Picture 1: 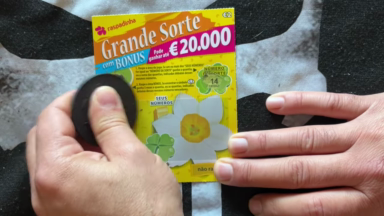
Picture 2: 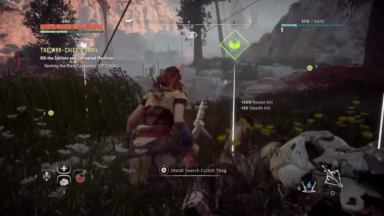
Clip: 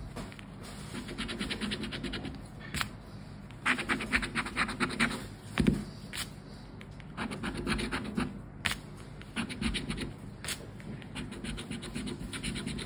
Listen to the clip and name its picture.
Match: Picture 1